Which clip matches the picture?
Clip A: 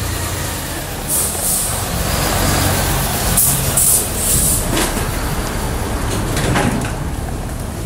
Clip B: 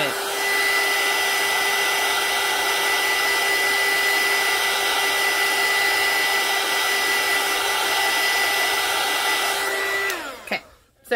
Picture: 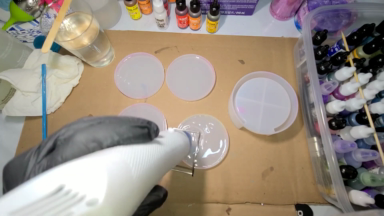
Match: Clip B